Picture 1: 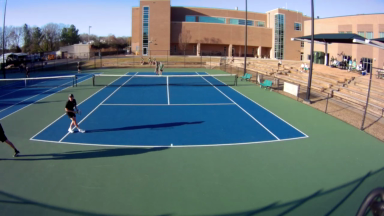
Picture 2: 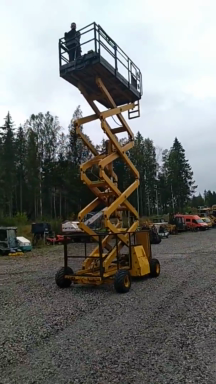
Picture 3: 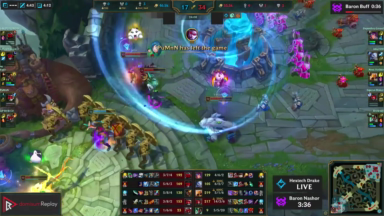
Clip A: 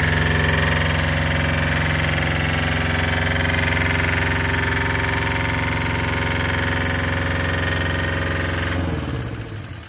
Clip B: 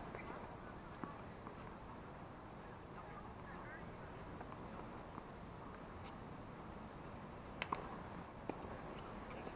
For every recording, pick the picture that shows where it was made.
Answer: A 2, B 1